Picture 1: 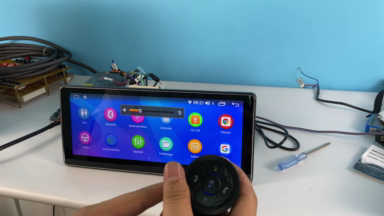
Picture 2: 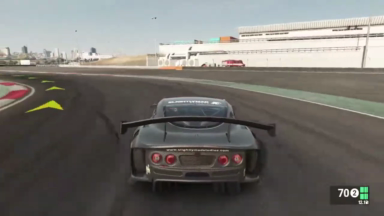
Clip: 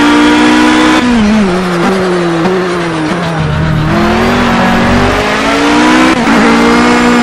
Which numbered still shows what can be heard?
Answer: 2